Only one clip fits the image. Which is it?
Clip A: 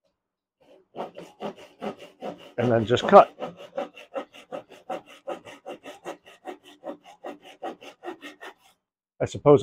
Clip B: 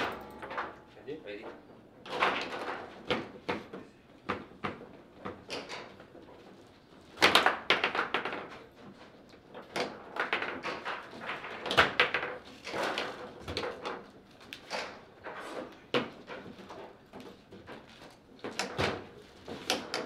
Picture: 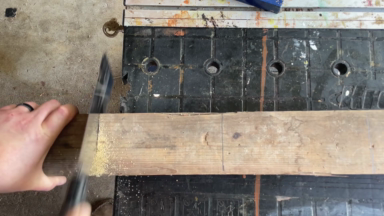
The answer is A